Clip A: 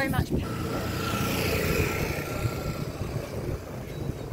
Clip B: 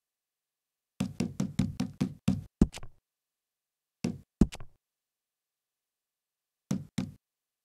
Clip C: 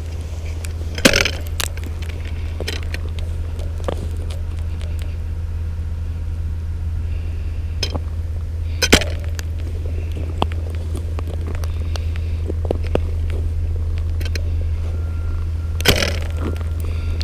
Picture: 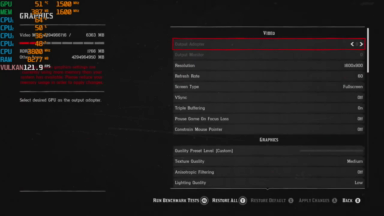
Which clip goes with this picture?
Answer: B